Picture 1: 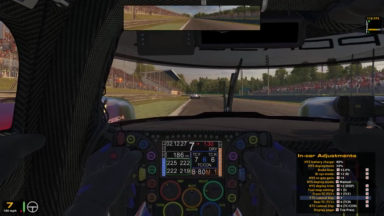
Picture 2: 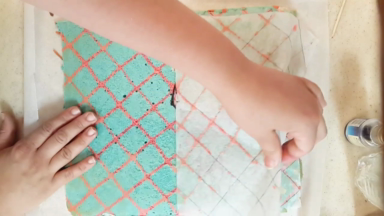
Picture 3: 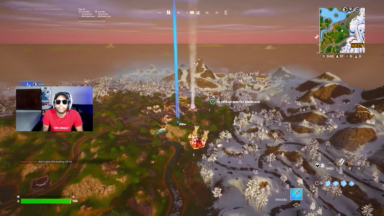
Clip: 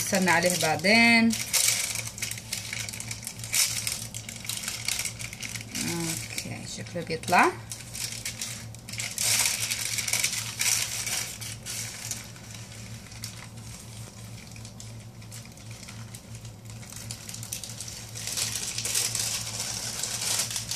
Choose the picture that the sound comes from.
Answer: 2